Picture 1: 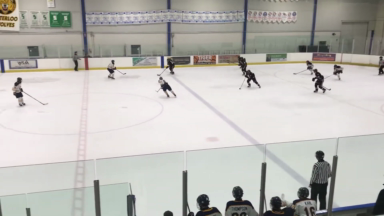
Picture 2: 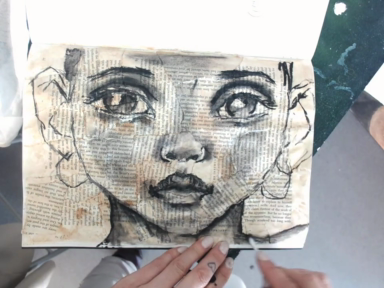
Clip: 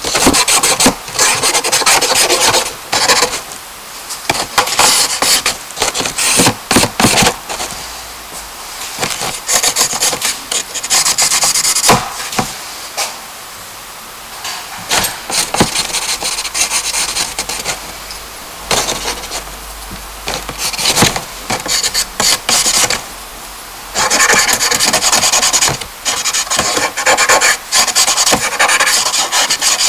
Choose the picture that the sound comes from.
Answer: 2